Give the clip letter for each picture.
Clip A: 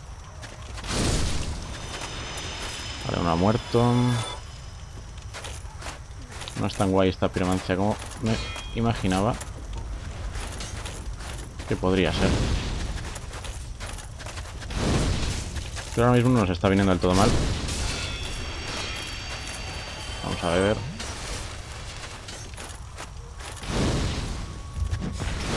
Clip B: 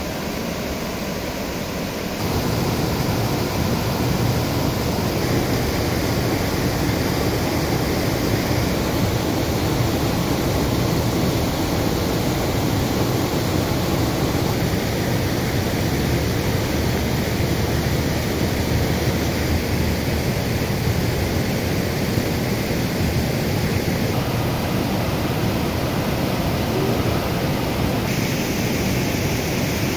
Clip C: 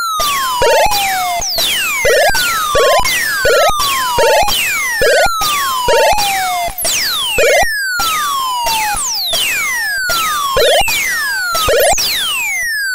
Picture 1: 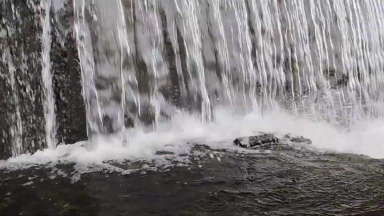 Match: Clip B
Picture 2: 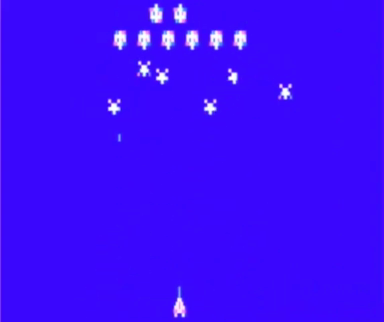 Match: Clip C